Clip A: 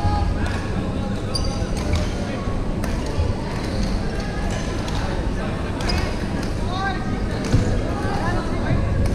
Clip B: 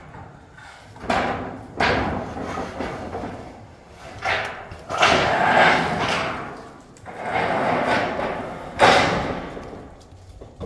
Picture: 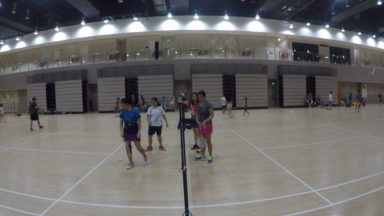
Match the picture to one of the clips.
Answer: A